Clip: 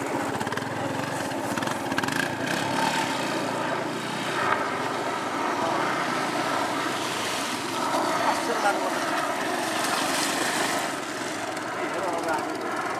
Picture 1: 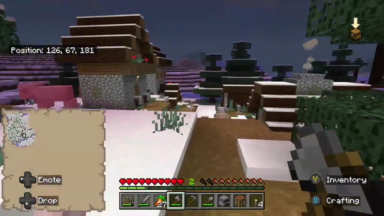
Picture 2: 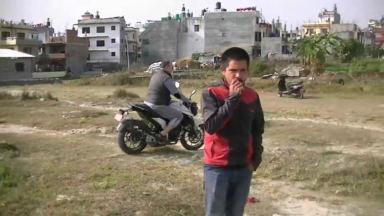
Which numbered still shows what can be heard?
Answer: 2